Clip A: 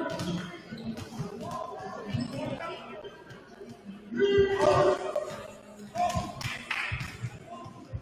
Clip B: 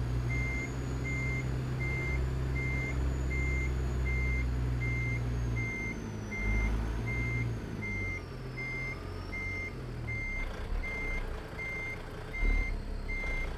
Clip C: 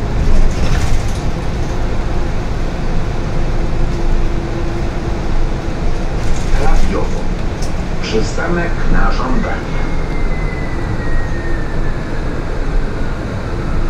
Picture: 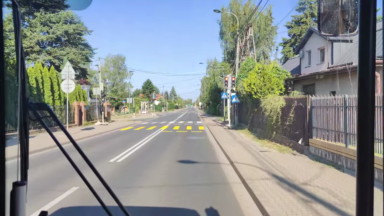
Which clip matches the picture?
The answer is C